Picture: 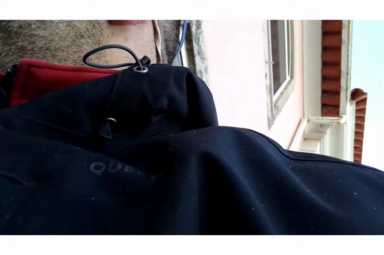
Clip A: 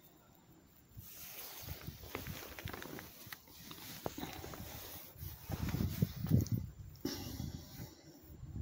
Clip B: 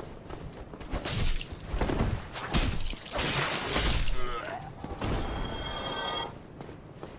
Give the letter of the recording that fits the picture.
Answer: A